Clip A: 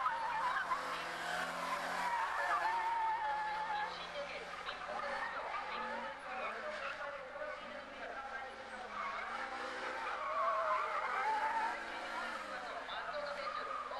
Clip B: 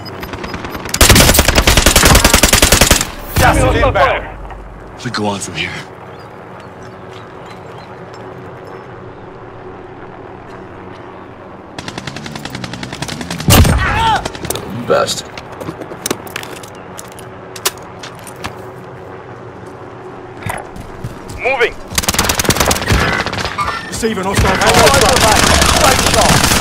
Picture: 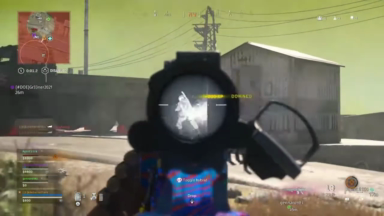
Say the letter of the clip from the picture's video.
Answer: B